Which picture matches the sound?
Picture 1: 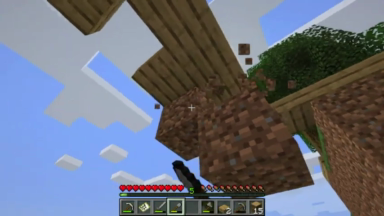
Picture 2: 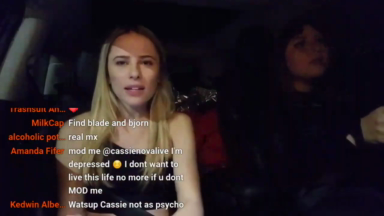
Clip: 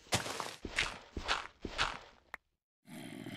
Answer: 1